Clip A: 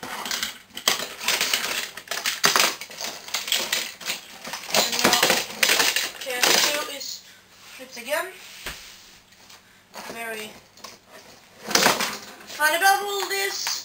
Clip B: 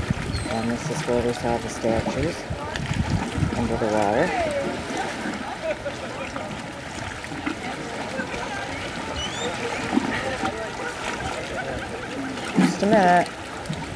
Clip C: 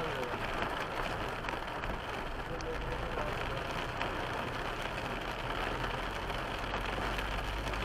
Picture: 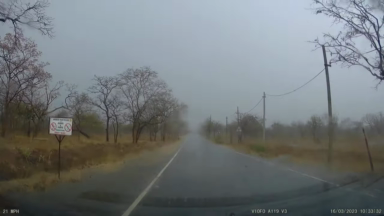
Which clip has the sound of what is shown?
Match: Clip C